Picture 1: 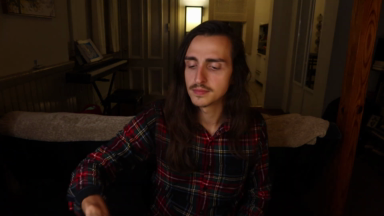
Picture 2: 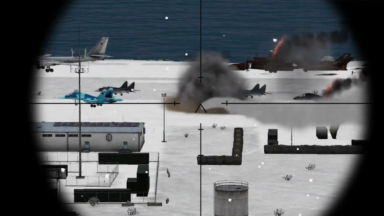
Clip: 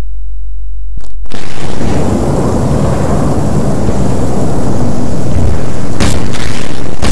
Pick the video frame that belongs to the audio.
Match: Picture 2